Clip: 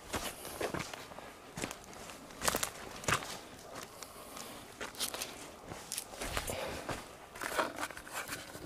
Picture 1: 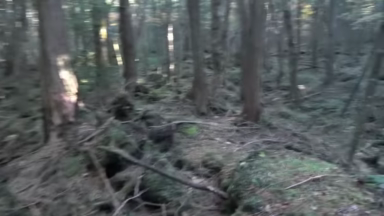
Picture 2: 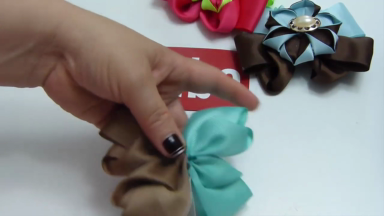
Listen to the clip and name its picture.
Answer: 1